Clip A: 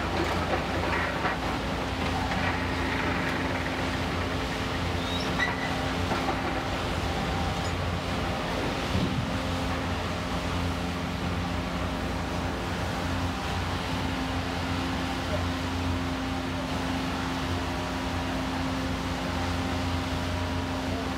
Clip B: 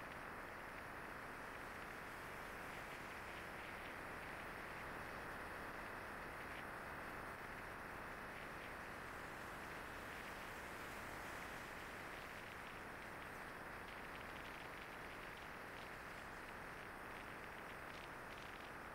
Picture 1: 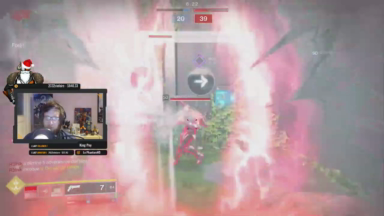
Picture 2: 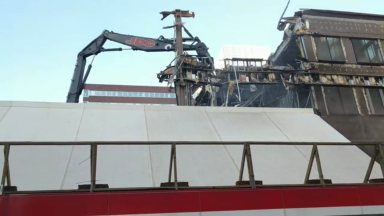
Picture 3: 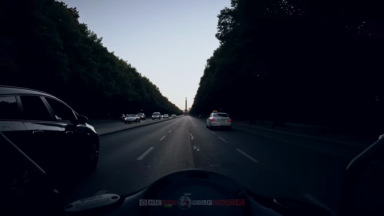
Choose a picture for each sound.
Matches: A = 2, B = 3